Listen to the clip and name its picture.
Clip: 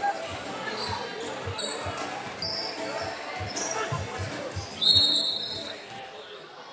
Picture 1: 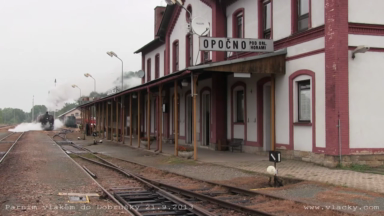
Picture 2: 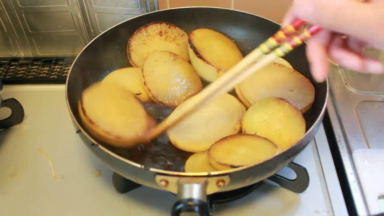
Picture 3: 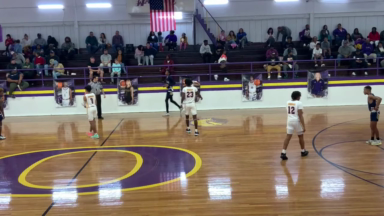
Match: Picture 3